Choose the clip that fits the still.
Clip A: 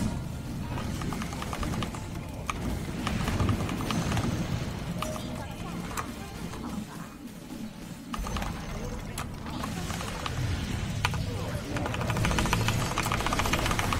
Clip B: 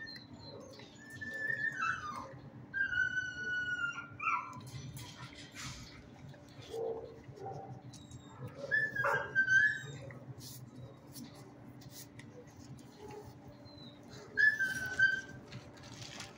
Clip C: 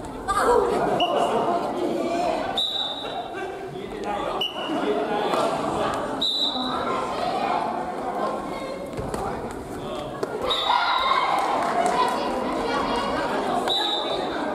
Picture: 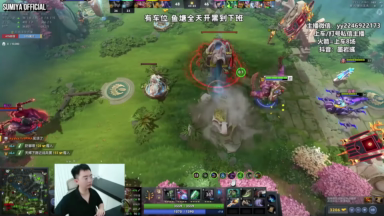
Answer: A